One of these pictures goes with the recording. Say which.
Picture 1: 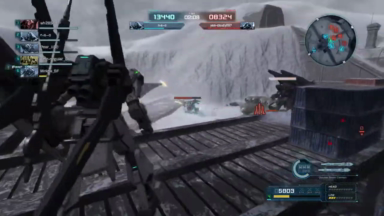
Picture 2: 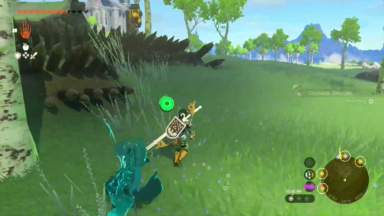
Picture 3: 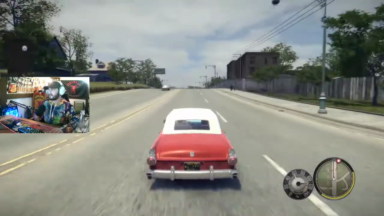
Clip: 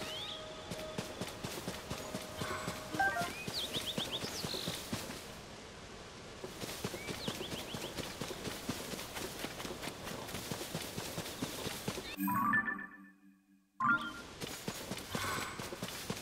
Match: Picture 2